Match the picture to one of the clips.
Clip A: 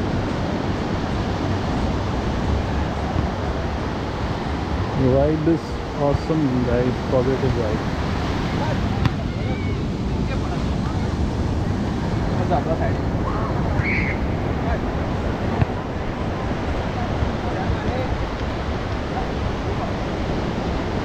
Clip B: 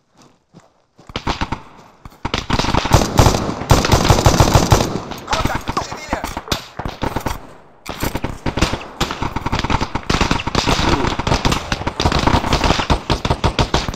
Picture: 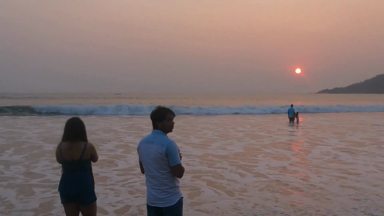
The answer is A